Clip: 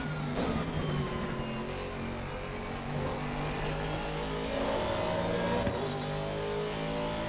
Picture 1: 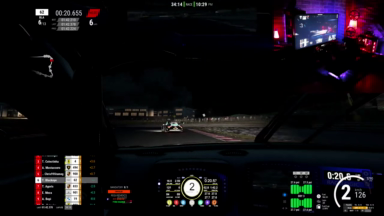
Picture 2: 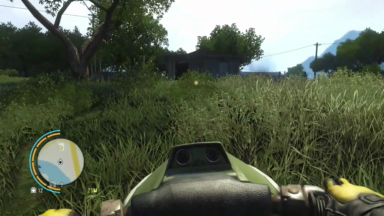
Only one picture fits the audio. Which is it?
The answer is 1